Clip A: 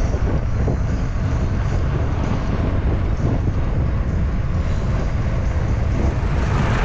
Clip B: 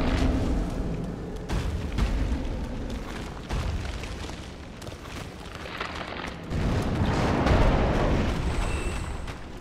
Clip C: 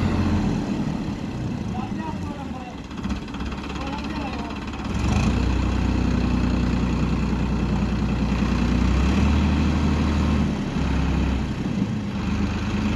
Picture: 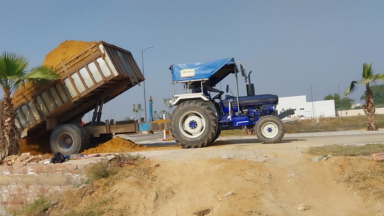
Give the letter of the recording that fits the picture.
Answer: C